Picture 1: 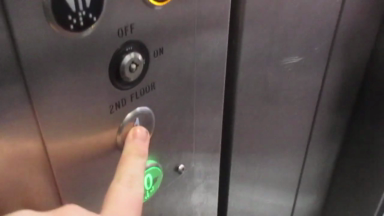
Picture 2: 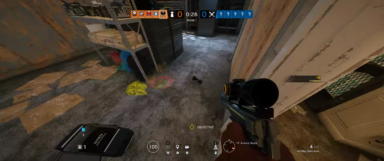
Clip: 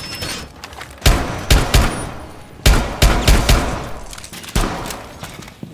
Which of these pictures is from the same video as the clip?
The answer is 2